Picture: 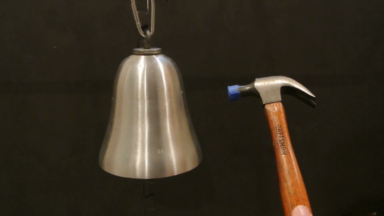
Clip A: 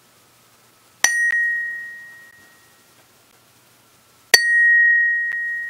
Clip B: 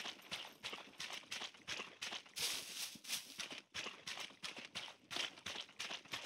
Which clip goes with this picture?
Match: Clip A